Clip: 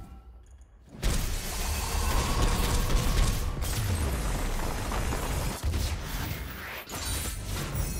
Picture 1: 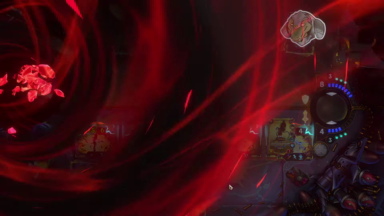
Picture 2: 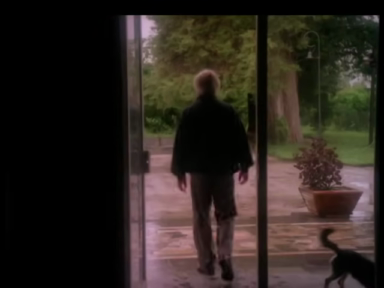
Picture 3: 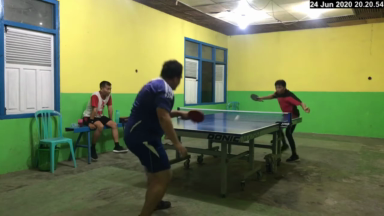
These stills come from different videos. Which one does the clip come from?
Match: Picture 1